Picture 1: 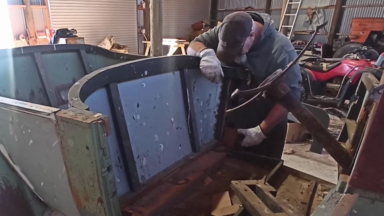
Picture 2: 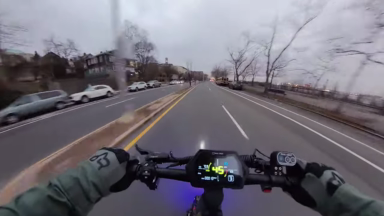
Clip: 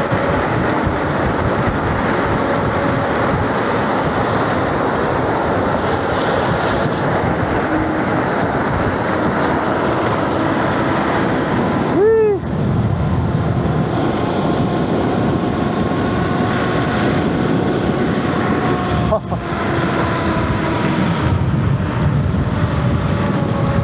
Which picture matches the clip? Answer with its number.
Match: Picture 2